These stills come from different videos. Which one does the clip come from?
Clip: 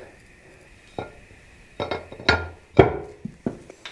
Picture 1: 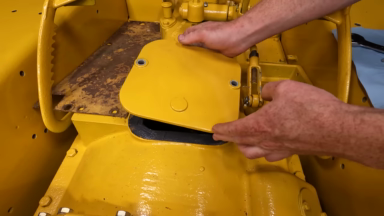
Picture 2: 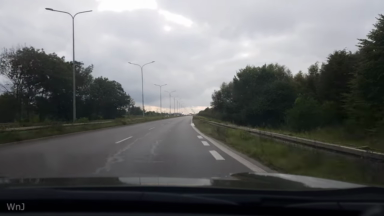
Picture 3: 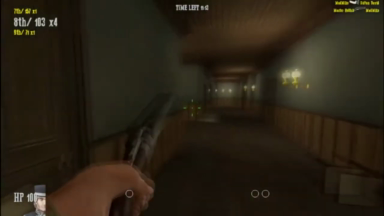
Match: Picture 1